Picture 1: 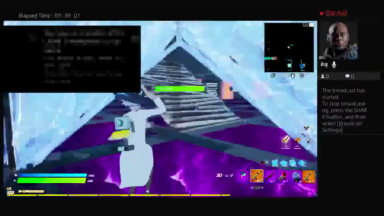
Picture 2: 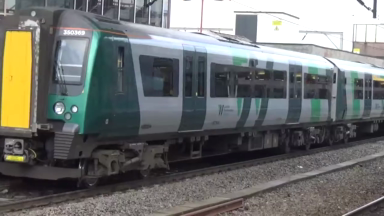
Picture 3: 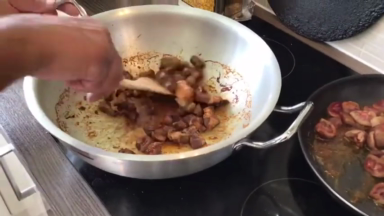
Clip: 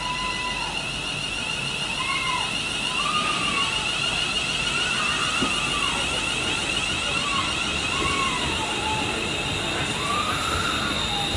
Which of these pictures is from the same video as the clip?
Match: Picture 2